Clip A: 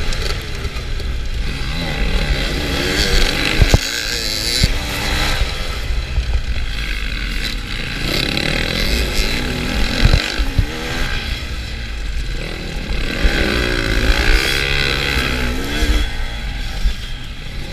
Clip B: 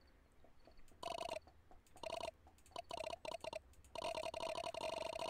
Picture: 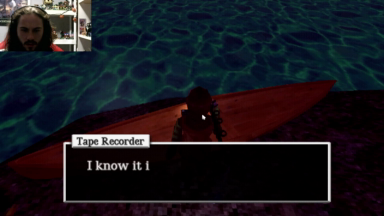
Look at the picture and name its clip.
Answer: B